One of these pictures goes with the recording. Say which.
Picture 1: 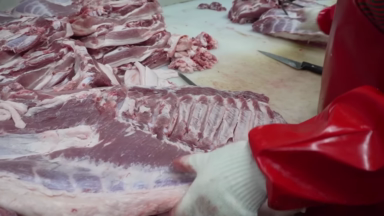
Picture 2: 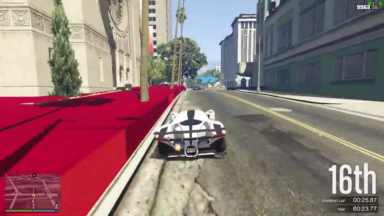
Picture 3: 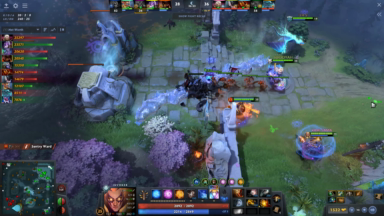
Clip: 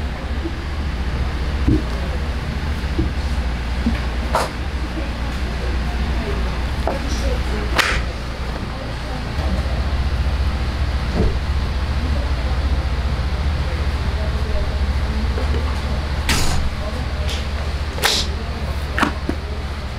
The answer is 1